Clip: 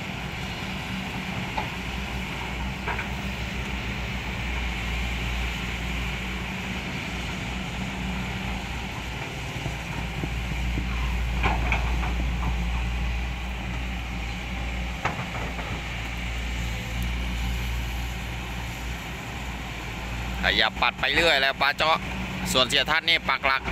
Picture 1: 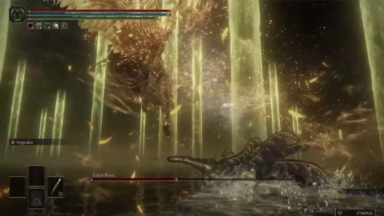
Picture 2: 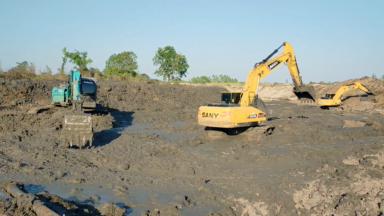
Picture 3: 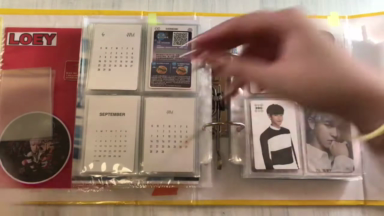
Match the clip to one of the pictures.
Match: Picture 2